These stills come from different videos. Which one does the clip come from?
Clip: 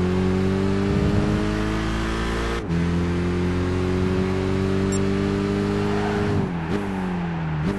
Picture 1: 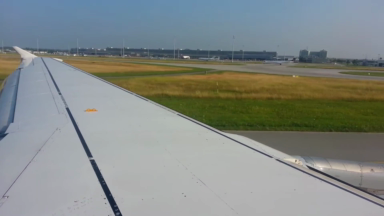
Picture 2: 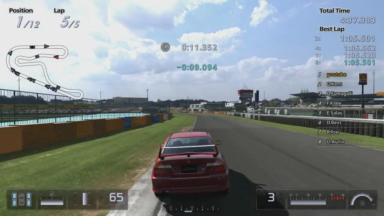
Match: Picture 2